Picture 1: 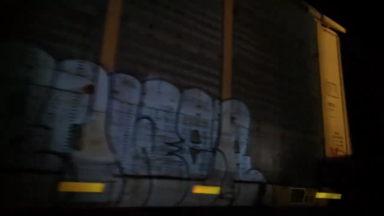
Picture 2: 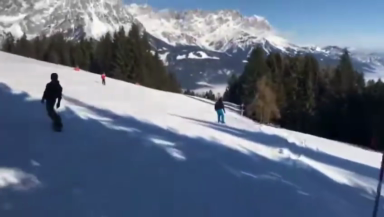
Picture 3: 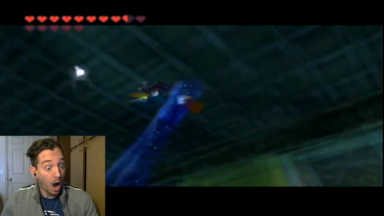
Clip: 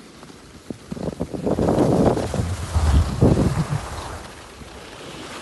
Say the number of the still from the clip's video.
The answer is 2